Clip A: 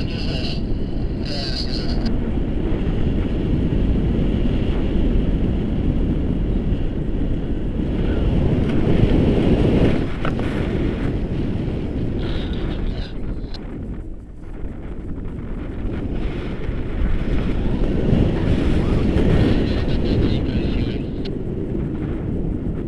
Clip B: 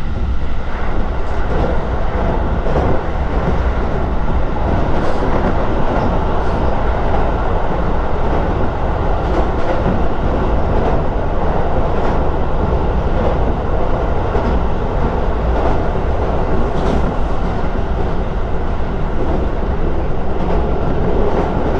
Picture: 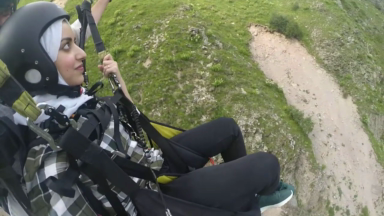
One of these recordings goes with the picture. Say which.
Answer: A